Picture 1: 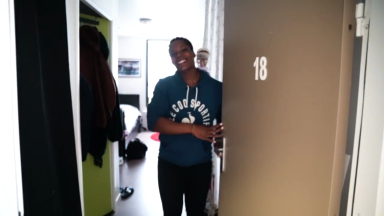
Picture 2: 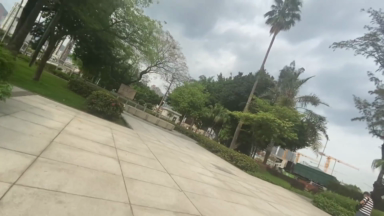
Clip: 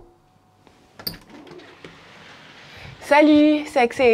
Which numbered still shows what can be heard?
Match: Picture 1